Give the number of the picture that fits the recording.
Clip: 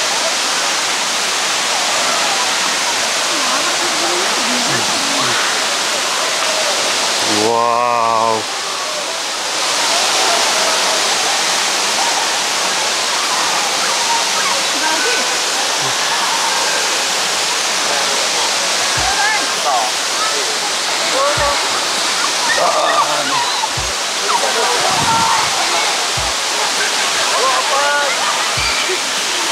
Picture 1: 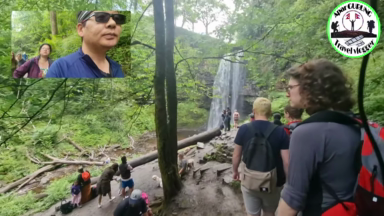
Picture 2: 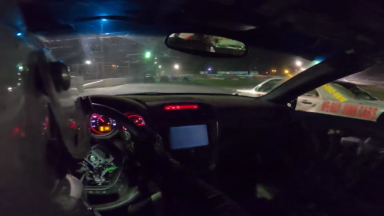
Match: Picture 1